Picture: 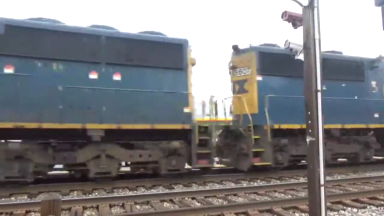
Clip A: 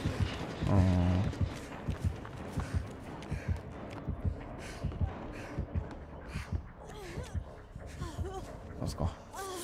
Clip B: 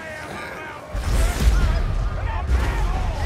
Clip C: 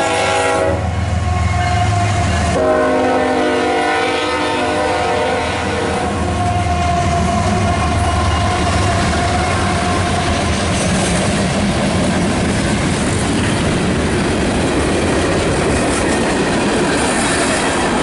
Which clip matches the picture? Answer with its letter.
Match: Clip C